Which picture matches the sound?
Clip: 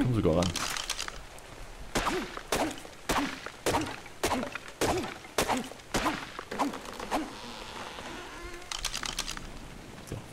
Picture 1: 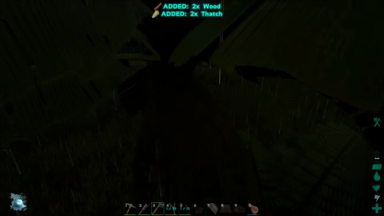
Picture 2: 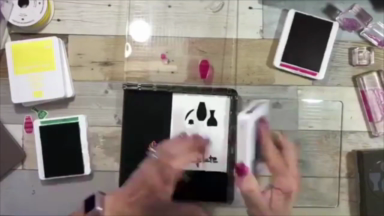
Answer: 1